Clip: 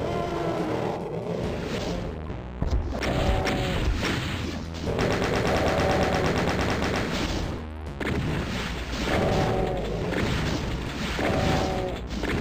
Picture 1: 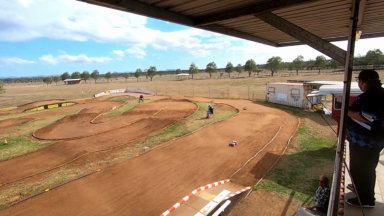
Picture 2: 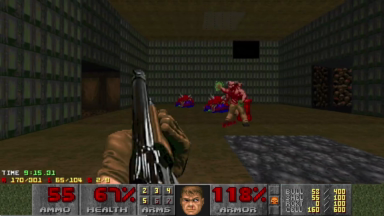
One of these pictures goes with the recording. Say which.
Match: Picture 2